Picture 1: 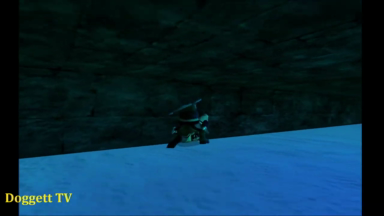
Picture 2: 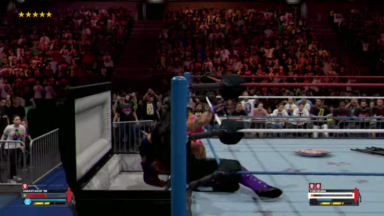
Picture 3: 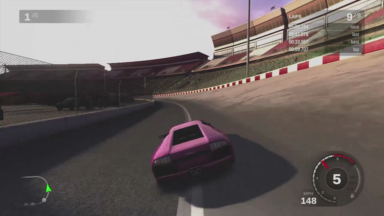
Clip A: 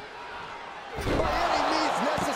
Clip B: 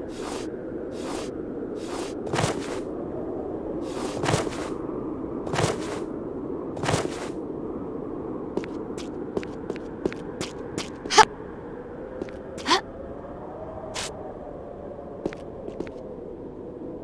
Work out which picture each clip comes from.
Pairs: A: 2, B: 1